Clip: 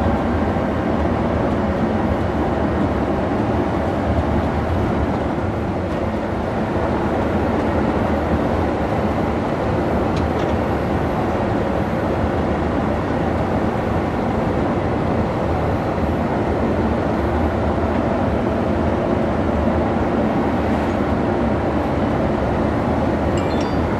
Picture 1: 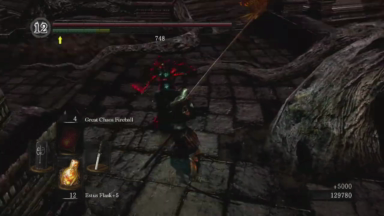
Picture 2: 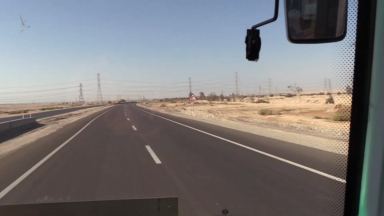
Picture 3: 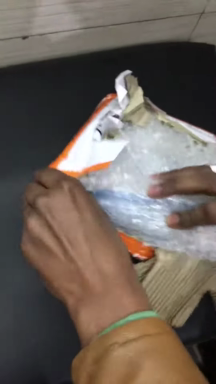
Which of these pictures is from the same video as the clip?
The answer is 2